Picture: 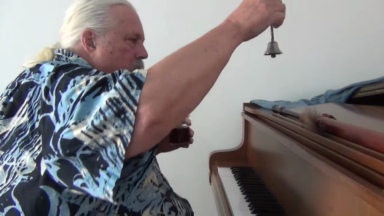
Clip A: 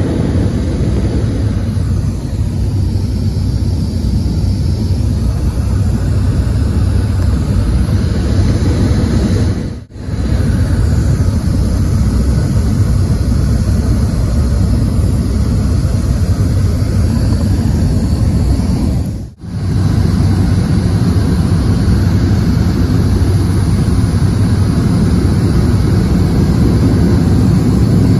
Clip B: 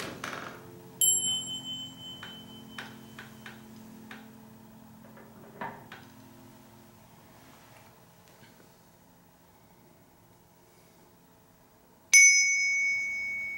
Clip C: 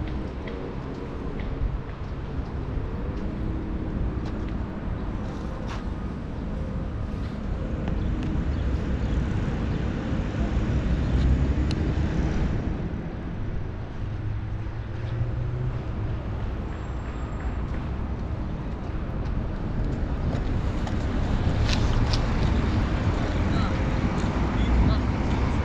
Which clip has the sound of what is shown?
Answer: B